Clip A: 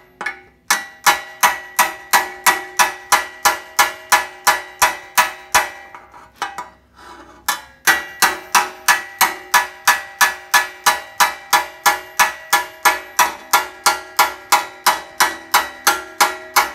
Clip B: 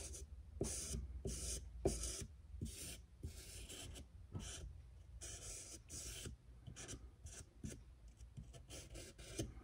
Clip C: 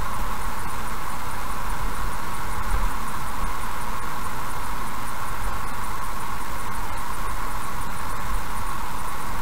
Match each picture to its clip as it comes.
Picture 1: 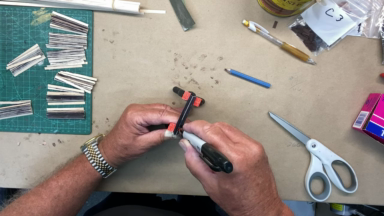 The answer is B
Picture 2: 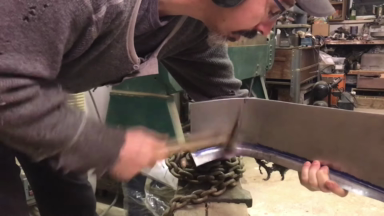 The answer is A